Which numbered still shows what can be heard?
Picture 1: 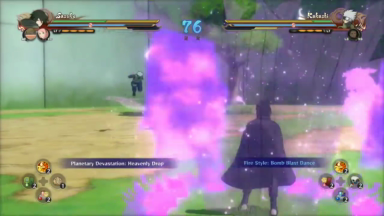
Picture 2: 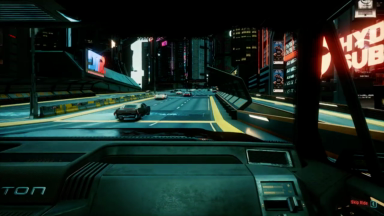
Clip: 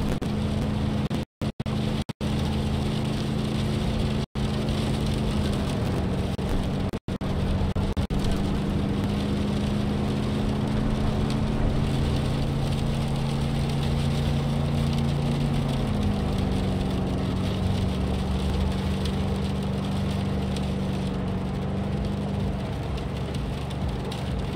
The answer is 2